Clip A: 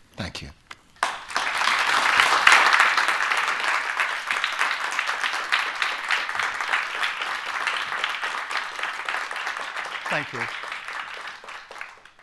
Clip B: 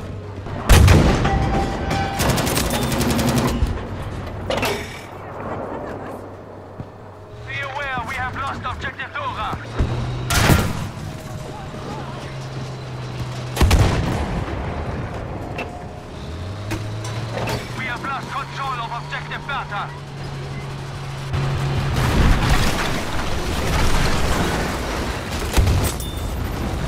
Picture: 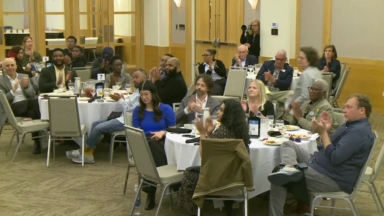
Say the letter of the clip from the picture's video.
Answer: A